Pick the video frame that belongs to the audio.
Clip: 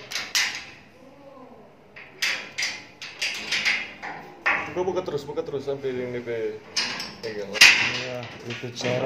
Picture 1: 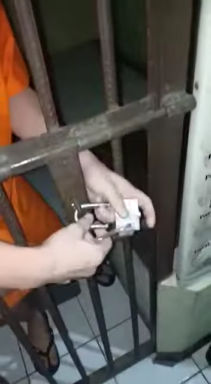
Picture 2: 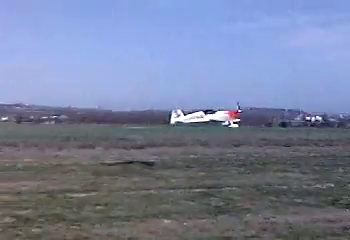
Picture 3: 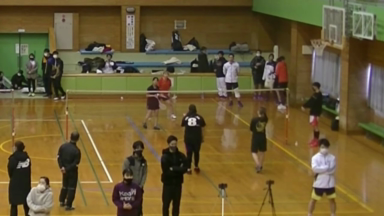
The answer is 1